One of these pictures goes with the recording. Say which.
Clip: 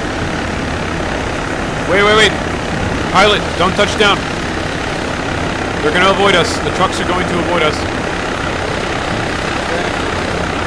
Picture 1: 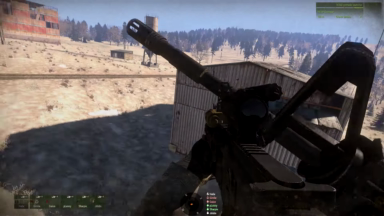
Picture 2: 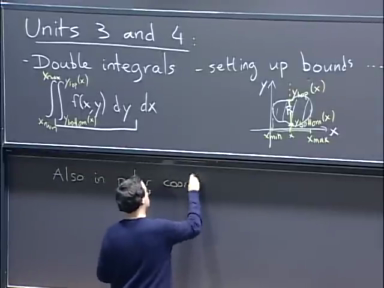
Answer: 1